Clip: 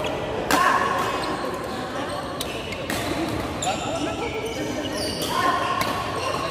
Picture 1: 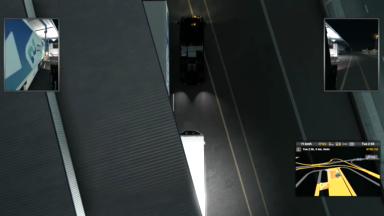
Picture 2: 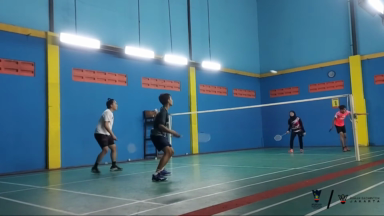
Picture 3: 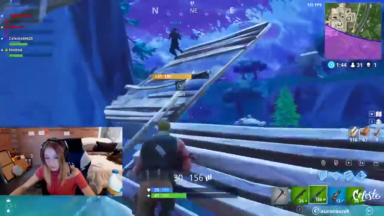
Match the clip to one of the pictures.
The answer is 2